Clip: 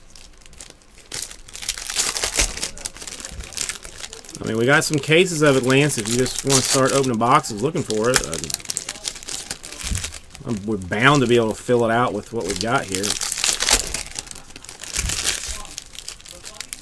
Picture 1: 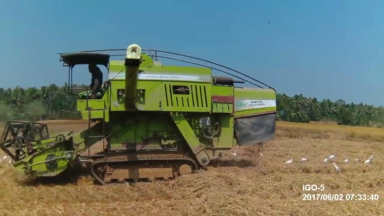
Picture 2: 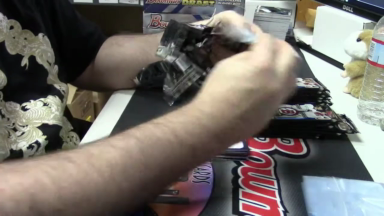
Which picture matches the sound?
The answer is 2